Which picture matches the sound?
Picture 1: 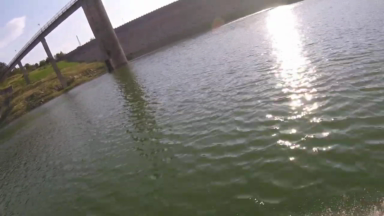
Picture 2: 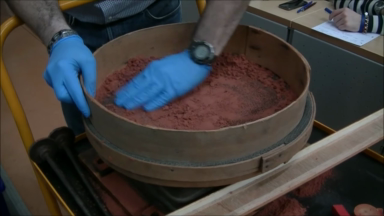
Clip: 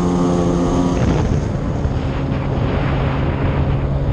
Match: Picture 1